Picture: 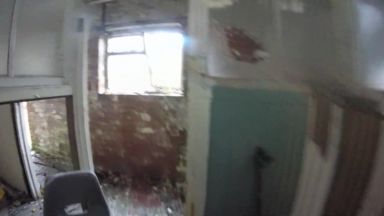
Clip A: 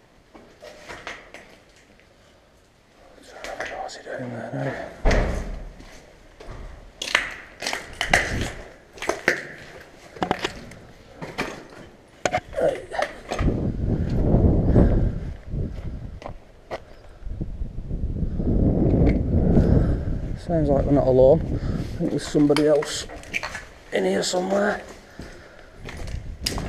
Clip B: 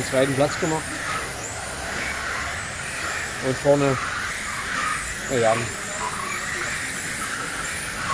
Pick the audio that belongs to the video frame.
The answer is A